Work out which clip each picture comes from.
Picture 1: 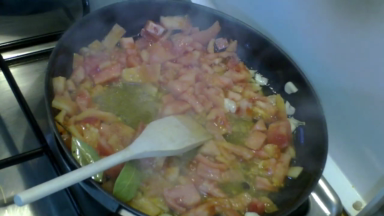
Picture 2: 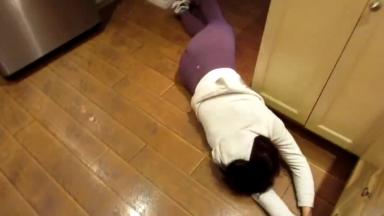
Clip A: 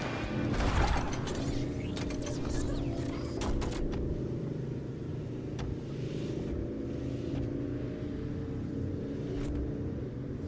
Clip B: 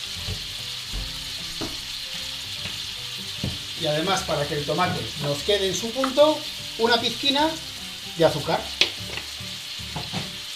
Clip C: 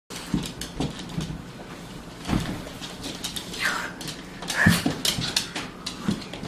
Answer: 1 B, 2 C